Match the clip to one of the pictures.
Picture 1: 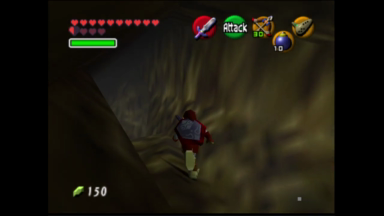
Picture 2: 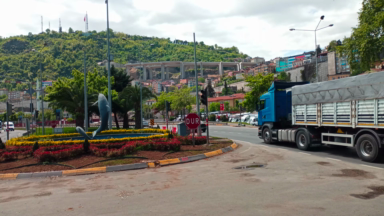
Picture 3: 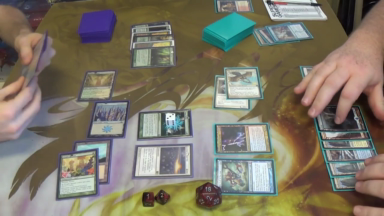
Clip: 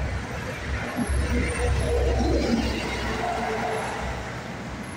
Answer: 2